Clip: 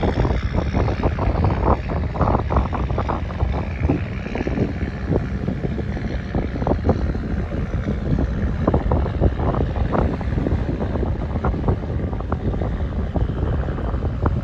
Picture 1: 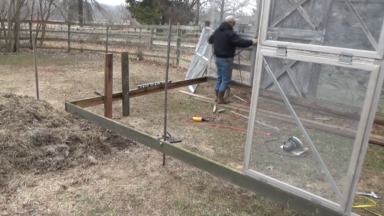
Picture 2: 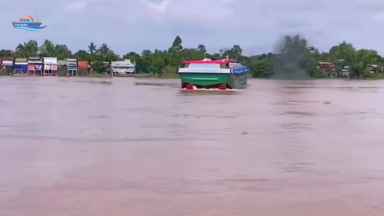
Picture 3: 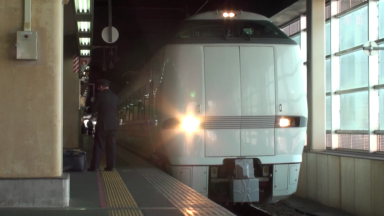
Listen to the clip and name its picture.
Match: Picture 2